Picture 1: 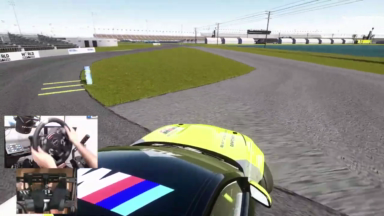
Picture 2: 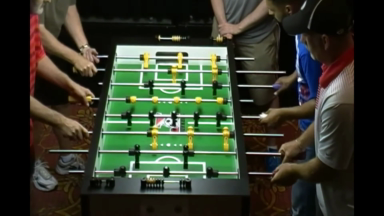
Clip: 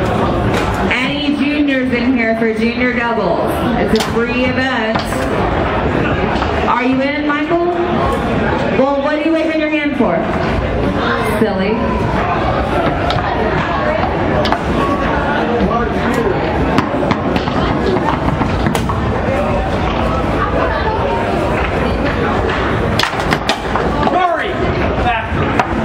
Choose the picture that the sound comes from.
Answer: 2